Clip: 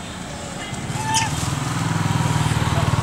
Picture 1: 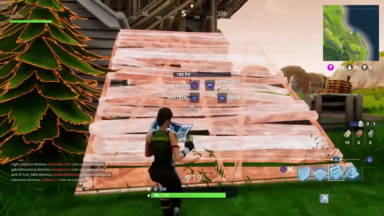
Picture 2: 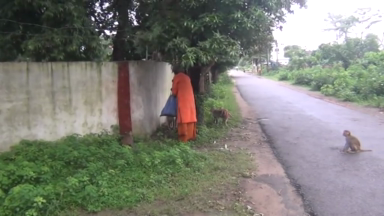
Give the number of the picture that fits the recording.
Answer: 2